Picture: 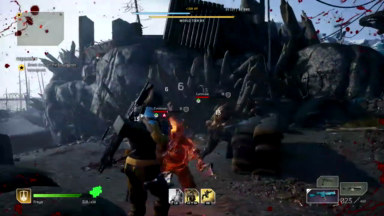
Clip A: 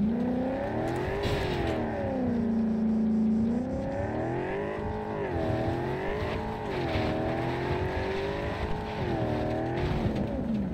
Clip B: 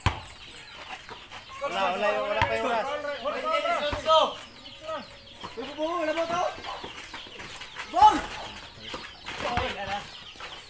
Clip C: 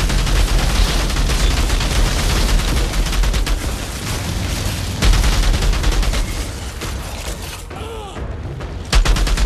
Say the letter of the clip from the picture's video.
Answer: C